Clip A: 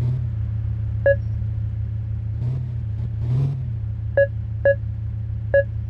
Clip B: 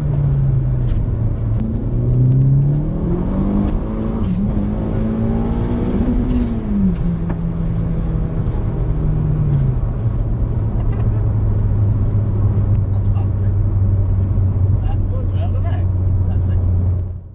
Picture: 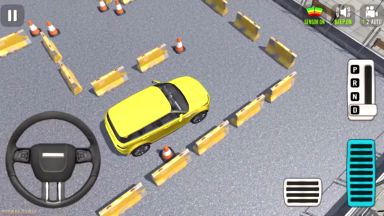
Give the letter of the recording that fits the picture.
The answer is A